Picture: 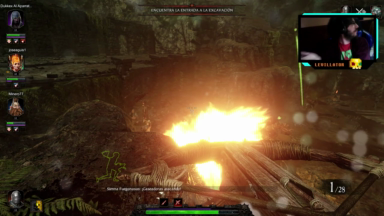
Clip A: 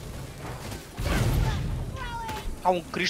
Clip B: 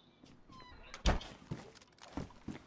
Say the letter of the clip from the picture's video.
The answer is A